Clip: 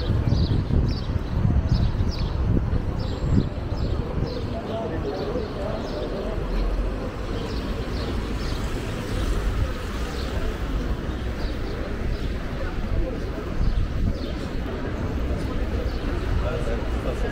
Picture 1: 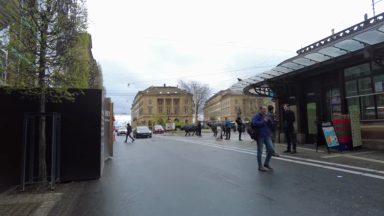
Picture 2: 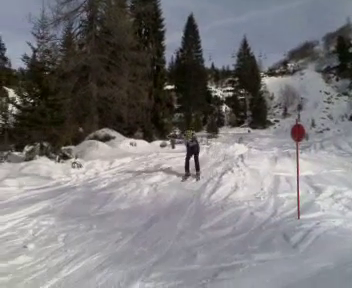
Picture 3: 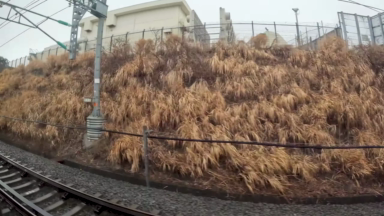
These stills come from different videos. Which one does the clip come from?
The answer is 1